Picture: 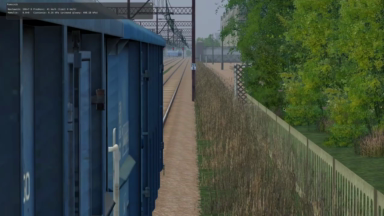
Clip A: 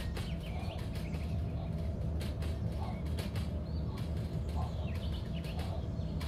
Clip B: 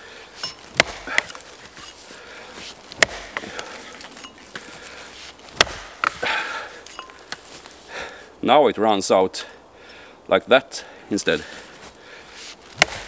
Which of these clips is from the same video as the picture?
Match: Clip A